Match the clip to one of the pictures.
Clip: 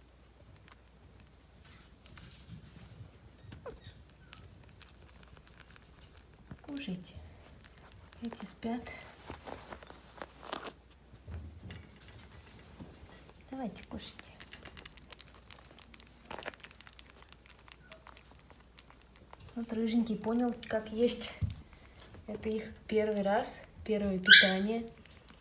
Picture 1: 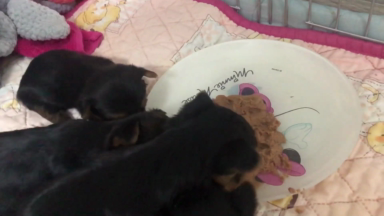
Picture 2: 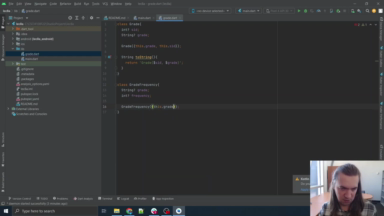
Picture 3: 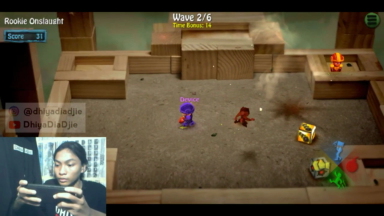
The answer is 1